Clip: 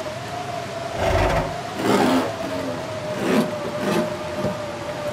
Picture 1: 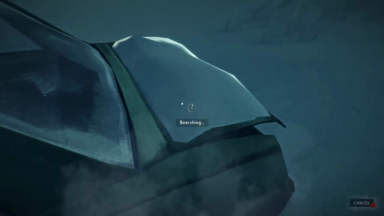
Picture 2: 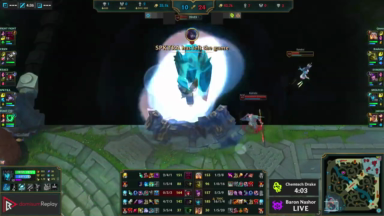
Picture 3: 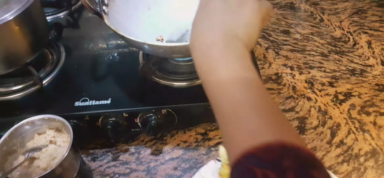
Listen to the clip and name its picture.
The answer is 1